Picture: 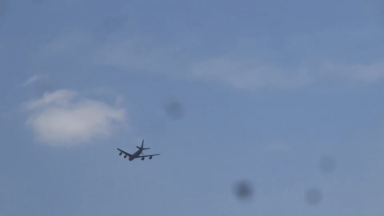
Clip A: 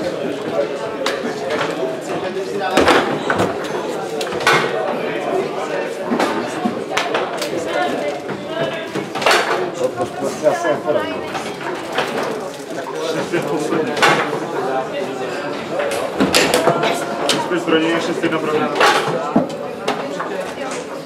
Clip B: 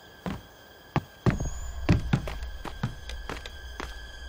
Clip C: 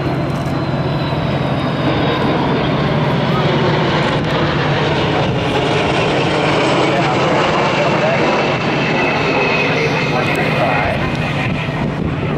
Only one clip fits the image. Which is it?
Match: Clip C